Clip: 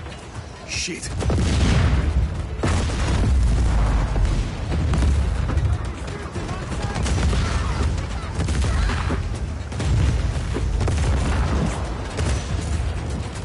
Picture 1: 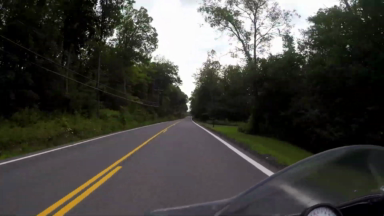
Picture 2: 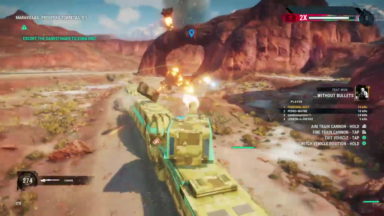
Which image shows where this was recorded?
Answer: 2